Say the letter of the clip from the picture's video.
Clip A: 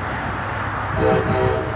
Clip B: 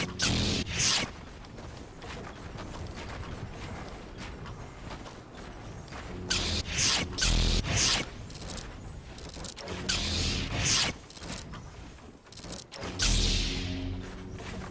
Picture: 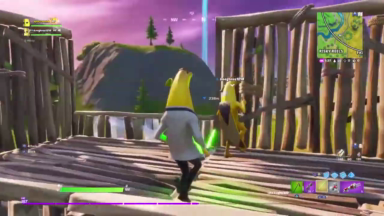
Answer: B